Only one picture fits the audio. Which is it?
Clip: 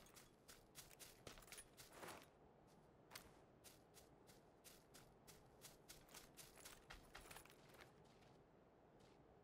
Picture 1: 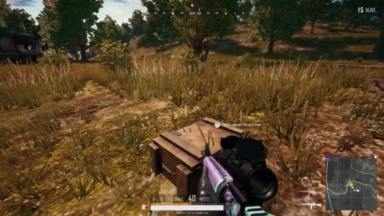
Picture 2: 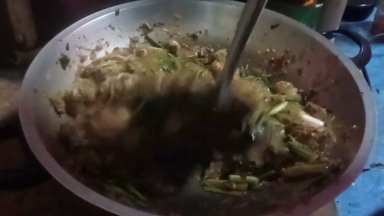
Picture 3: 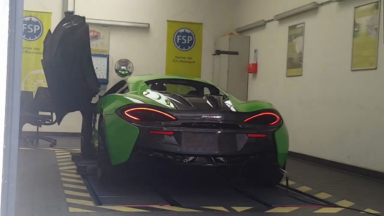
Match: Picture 1